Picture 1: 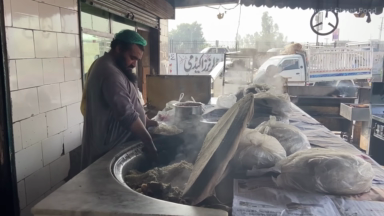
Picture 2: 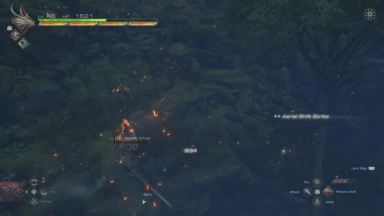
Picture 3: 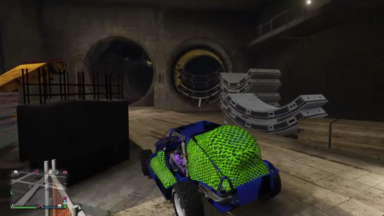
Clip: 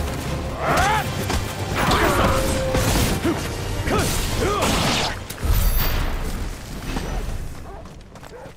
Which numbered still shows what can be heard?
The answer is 2